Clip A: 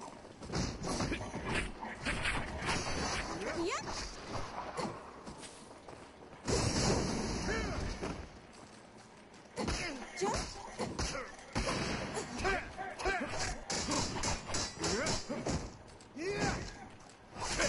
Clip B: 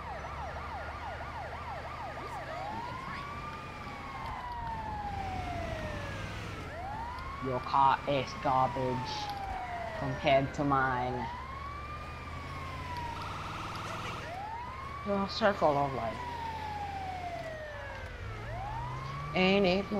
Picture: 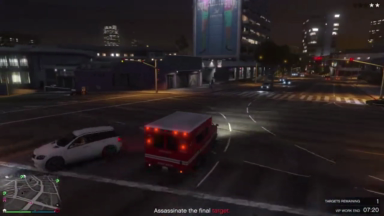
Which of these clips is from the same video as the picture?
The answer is B